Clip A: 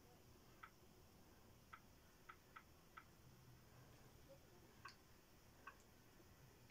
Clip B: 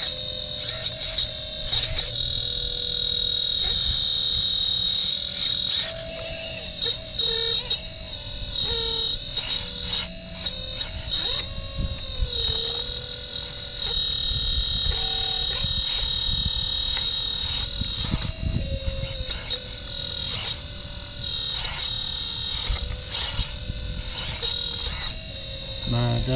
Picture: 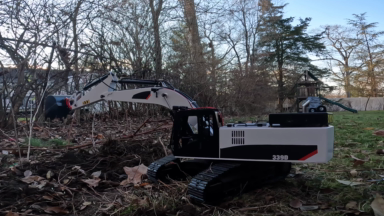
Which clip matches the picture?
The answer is B